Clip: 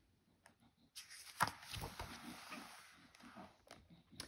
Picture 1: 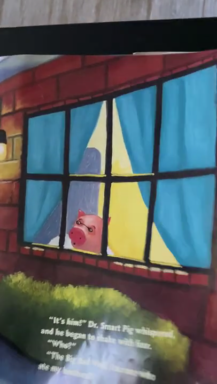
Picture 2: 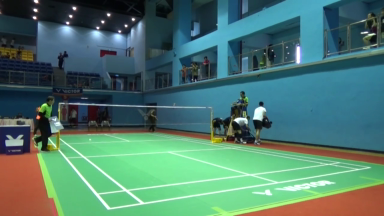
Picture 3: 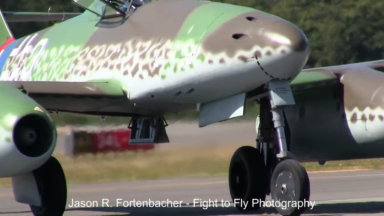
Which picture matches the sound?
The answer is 1